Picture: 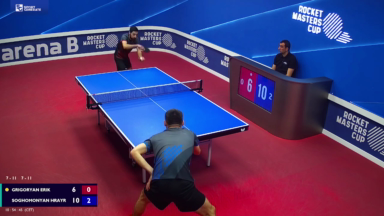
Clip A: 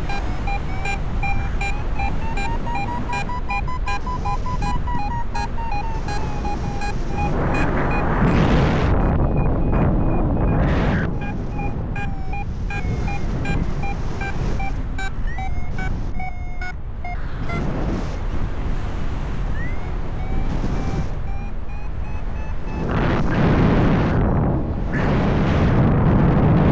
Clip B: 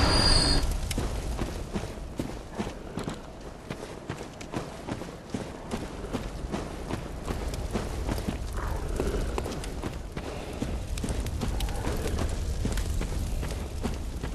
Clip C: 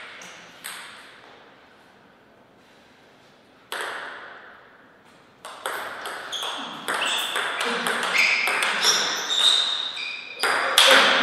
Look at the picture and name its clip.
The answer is C